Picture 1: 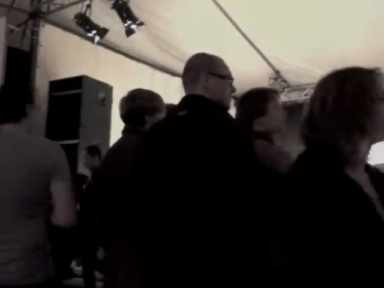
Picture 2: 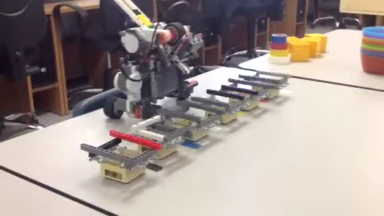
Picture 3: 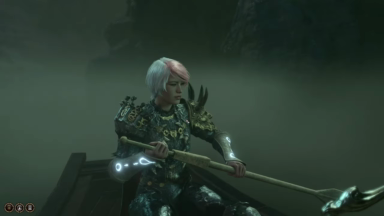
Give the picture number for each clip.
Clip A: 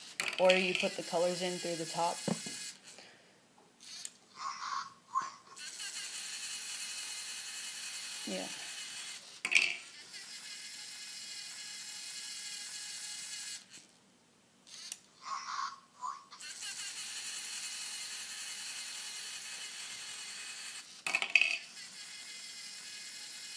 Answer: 2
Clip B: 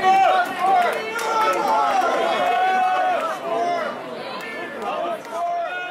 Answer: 1